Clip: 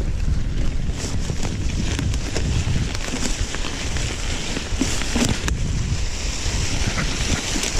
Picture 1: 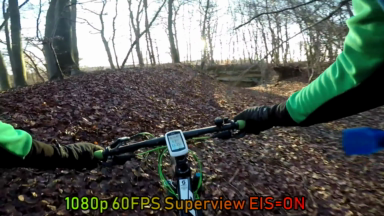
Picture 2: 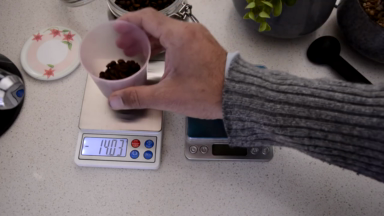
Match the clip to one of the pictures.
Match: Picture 1